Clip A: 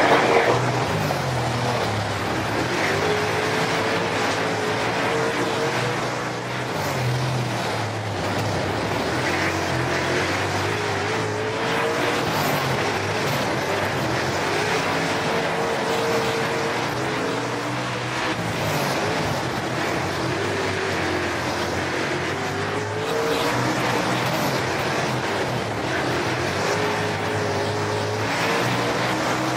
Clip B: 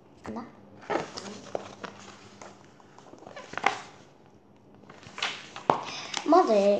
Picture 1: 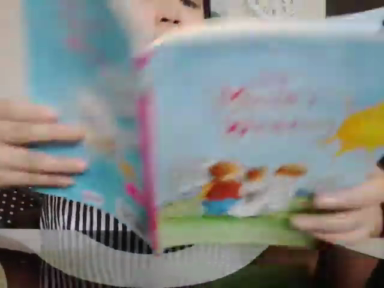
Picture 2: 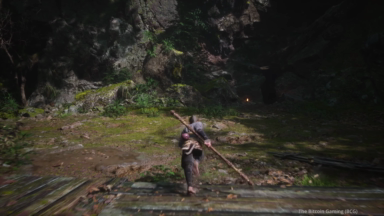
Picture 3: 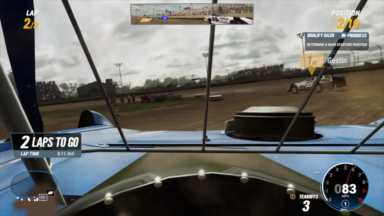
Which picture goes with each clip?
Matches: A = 3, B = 1